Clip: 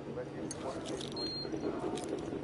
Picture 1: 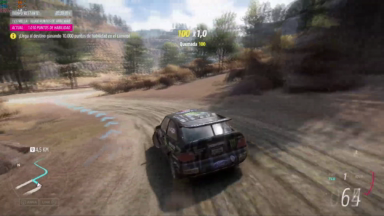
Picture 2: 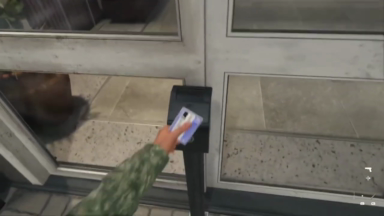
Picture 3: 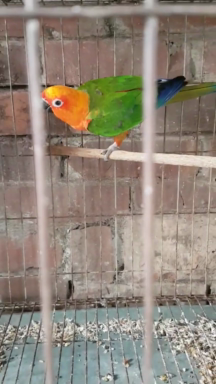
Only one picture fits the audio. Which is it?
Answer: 2